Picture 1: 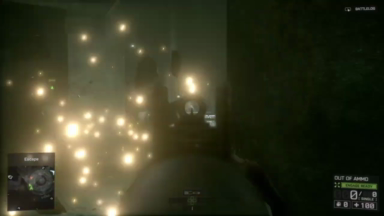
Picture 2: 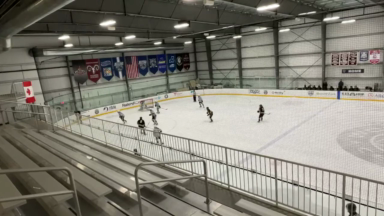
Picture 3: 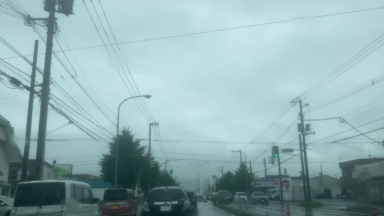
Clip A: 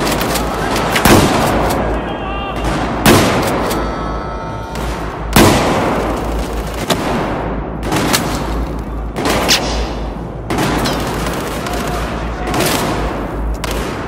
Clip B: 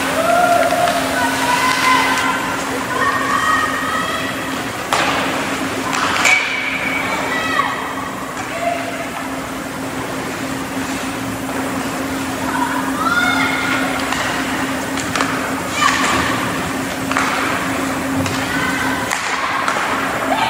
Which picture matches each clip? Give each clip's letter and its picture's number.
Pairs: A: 1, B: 2